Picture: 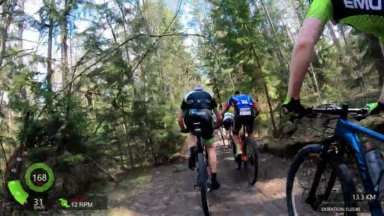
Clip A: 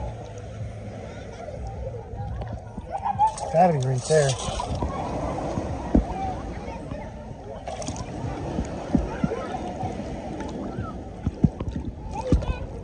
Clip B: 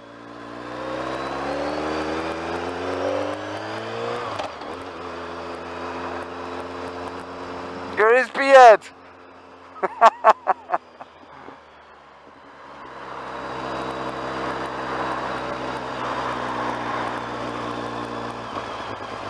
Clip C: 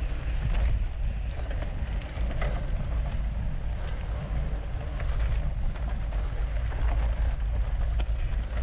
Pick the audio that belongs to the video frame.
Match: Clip C